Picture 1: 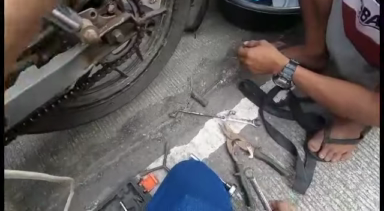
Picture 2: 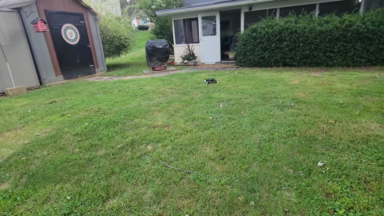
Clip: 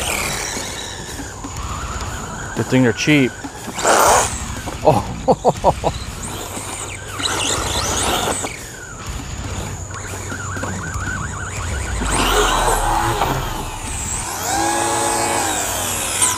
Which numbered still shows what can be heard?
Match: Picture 2